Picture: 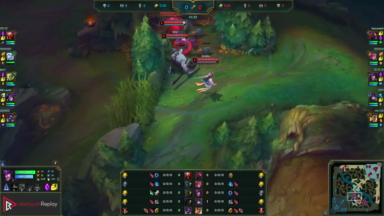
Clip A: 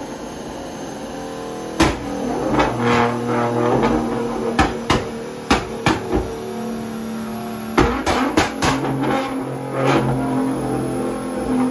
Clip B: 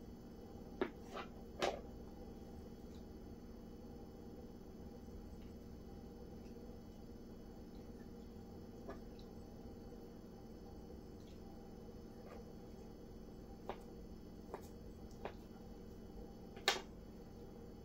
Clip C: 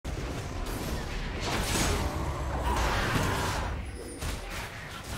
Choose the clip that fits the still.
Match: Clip C